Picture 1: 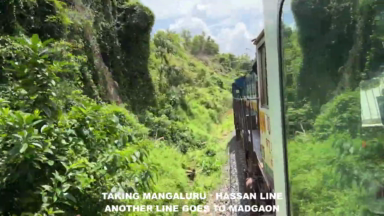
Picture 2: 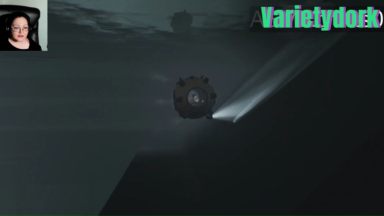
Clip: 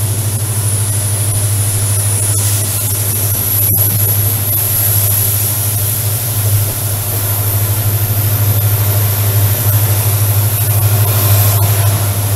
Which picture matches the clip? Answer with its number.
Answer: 1